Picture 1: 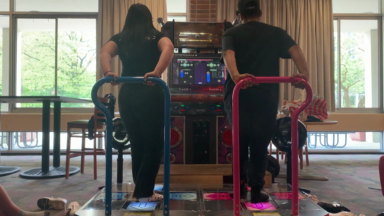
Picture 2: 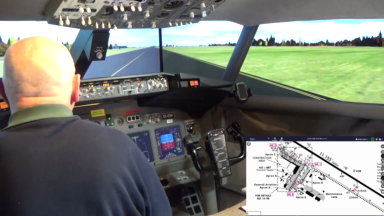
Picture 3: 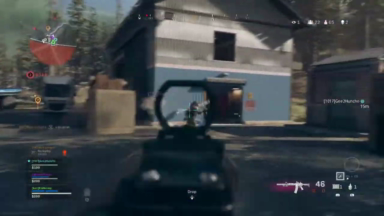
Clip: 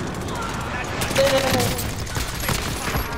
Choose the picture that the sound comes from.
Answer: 3